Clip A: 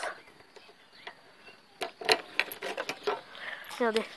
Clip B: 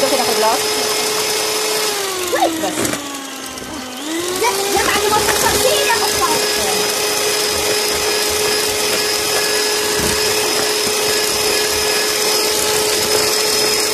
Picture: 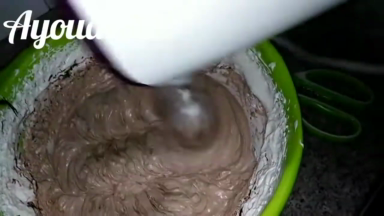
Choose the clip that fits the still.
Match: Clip B